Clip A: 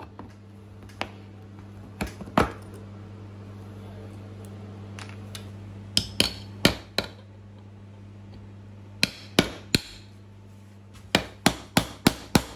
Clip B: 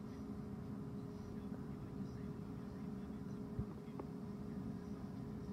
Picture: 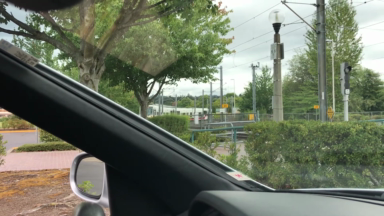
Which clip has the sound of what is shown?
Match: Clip B